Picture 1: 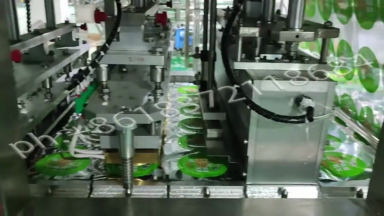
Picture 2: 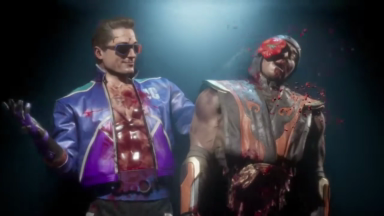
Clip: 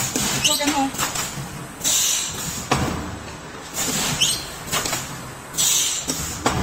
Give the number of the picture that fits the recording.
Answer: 1